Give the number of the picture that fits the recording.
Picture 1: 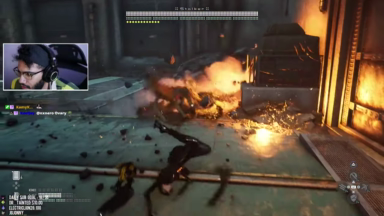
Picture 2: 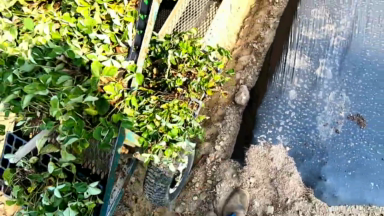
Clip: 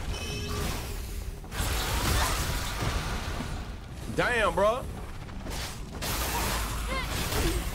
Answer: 1